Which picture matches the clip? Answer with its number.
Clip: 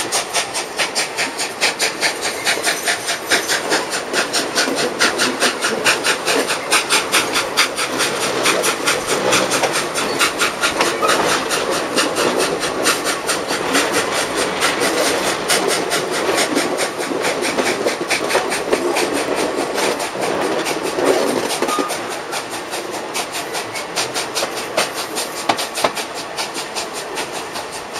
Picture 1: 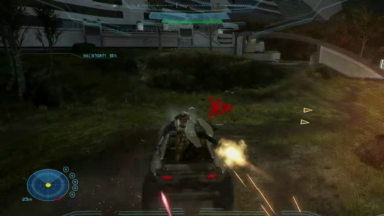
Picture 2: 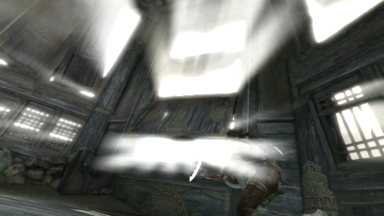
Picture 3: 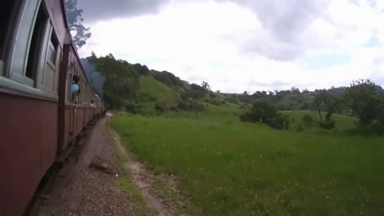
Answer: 3